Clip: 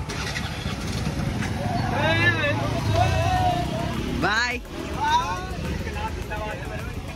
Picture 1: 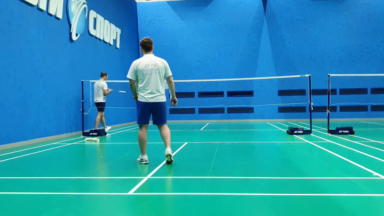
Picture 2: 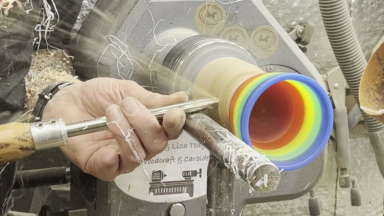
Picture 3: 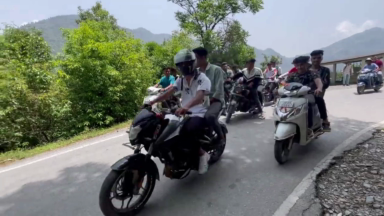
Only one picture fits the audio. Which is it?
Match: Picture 3